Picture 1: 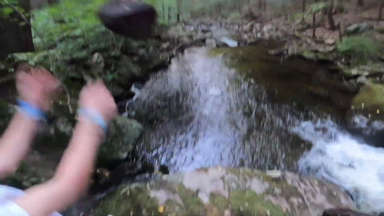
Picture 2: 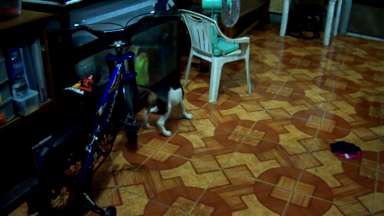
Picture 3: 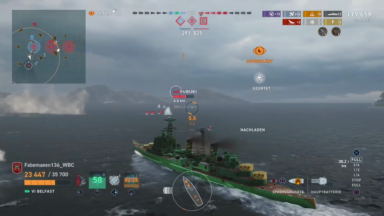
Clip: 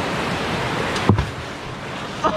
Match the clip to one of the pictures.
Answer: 1